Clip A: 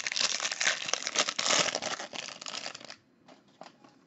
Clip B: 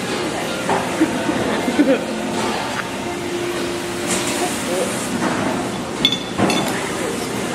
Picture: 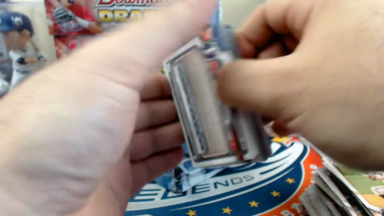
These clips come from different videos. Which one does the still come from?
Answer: A